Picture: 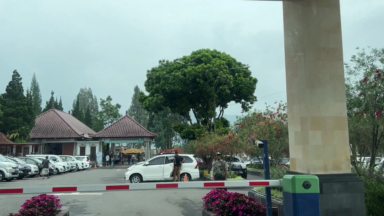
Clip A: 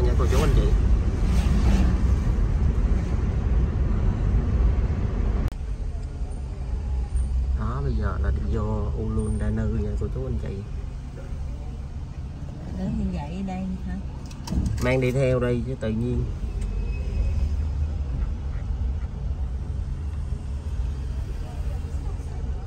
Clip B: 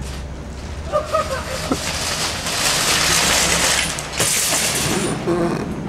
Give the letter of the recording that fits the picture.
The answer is A